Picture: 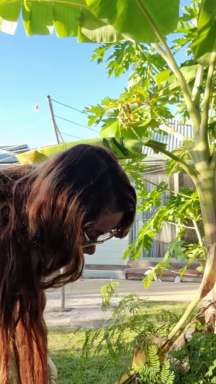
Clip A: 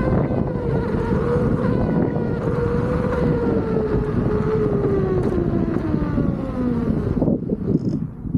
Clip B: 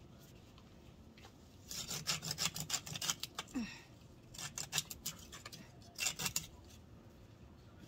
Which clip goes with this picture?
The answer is B